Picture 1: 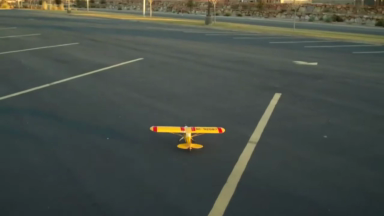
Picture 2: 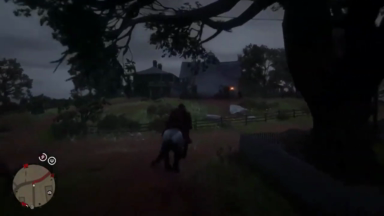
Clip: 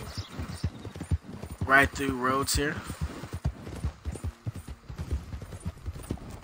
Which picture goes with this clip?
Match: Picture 2